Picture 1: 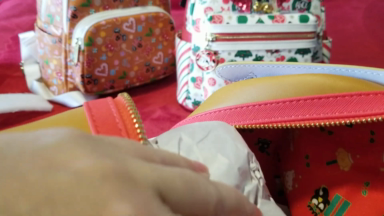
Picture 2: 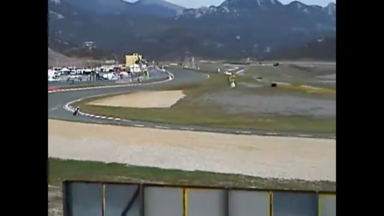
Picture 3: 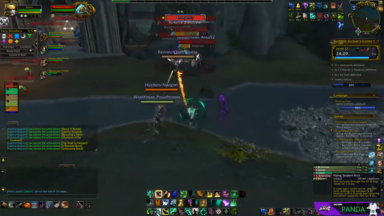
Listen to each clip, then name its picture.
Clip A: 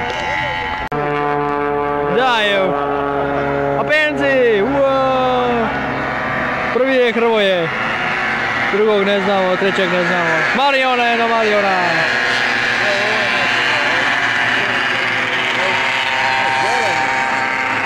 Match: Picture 2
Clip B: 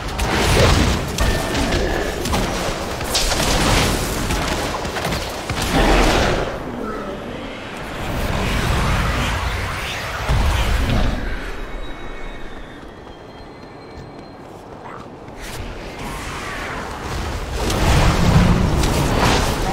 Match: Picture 3